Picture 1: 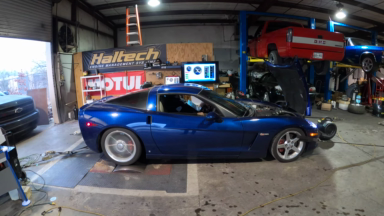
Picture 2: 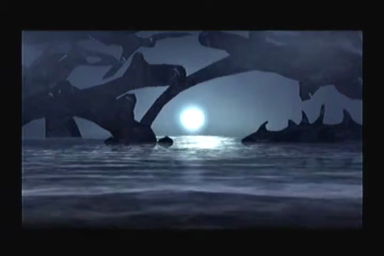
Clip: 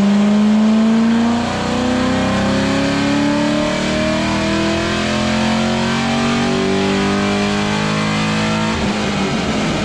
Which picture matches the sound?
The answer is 1